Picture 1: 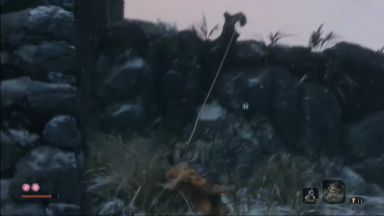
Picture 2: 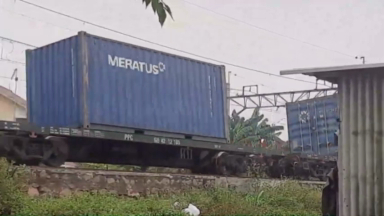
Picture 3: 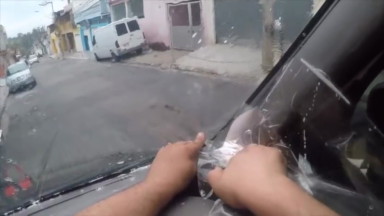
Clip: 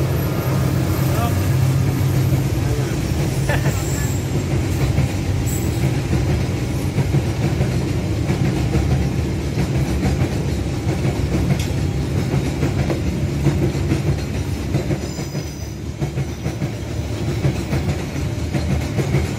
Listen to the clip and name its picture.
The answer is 2